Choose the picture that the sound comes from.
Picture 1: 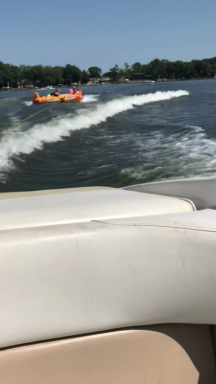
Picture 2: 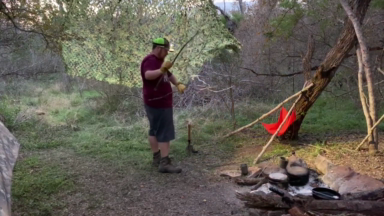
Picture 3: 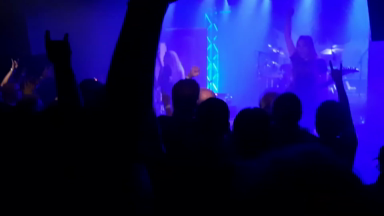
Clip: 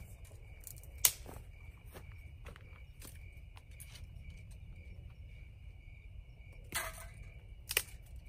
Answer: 2